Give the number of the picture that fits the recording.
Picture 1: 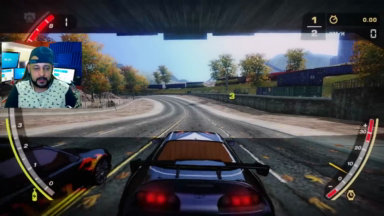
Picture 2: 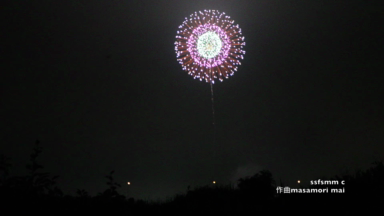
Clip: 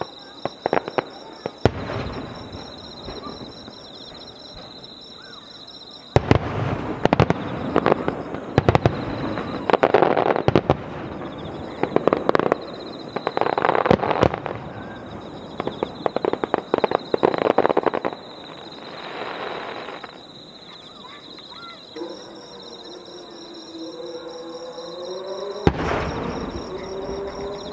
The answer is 2